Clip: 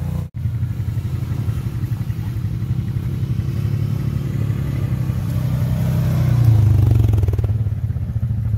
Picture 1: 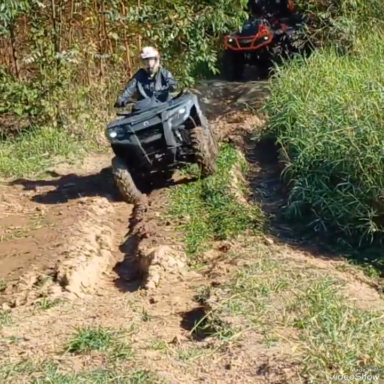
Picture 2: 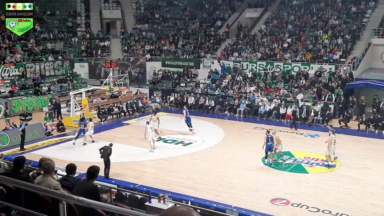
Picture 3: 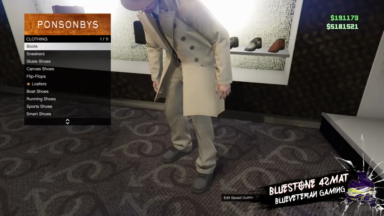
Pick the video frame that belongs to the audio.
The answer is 1